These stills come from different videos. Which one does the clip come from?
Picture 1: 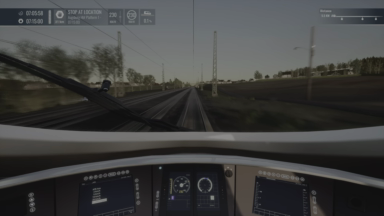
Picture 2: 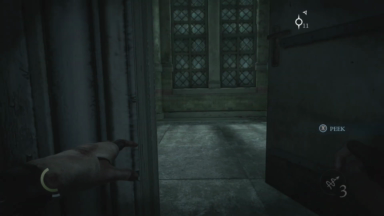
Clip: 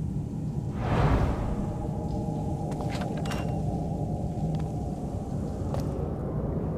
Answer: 2